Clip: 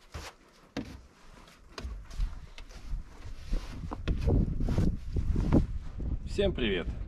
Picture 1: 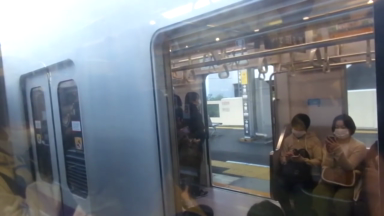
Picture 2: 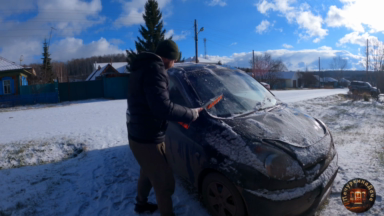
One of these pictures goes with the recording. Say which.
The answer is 2